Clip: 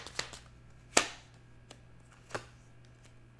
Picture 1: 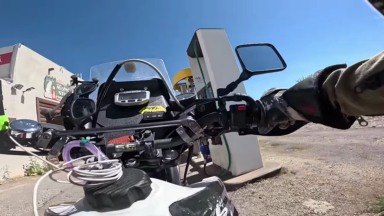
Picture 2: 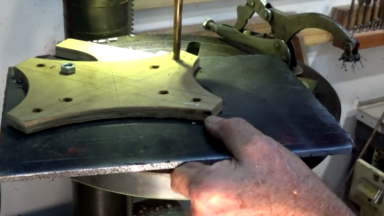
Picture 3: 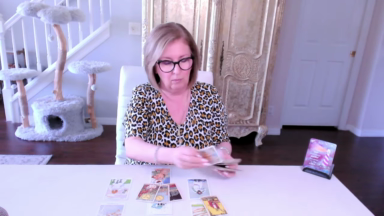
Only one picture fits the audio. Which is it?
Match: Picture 3